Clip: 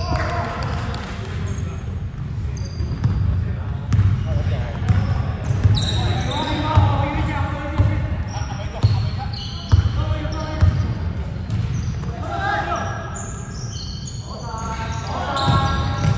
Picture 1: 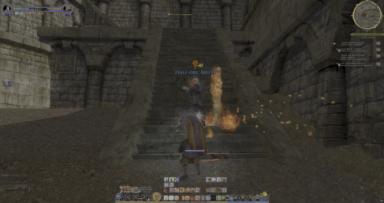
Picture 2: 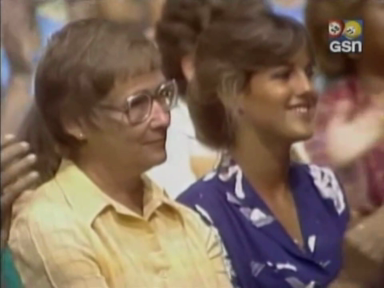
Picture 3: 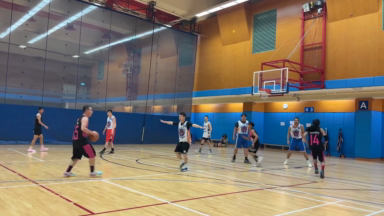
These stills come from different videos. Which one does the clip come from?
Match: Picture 3